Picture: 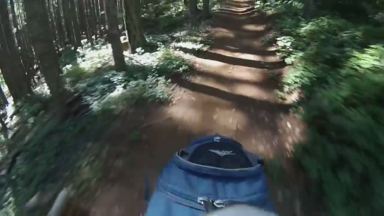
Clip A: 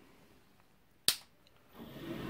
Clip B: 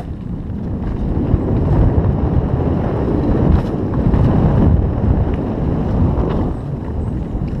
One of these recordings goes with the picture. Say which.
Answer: B